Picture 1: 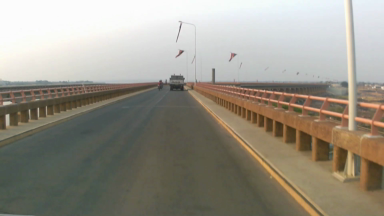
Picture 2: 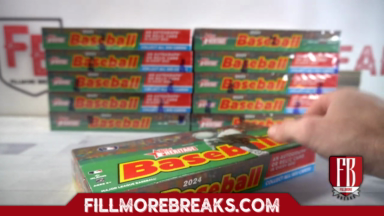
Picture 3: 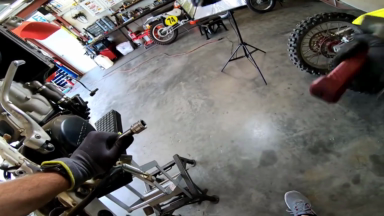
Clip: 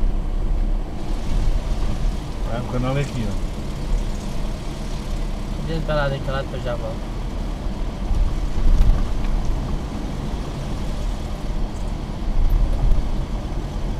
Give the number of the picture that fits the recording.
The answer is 1